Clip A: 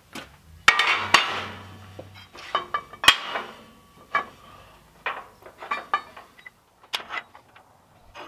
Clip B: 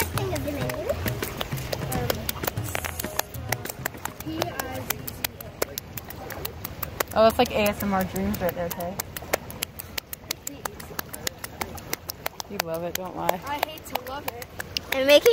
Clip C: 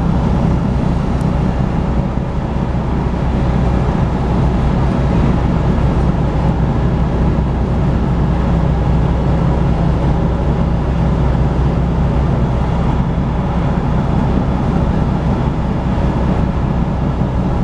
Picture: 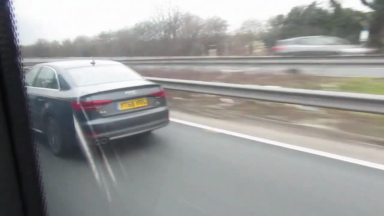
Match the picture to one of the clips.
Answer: C